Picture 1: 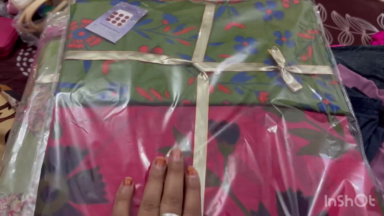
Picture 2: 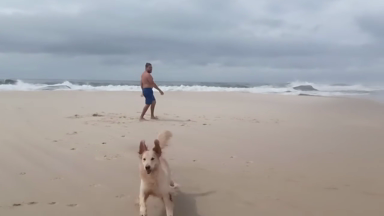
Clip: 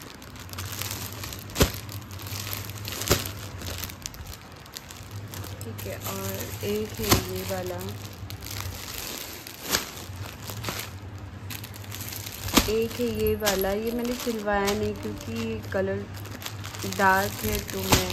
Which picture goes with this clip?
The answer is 1